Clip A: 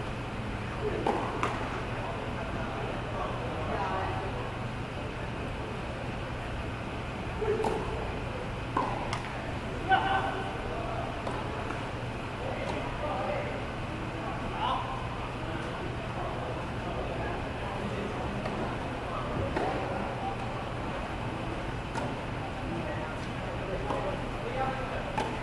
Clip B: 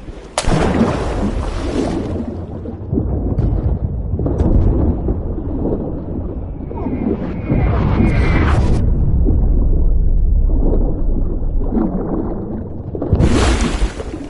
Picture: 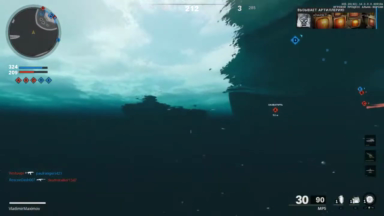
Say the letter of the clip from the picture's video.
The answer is B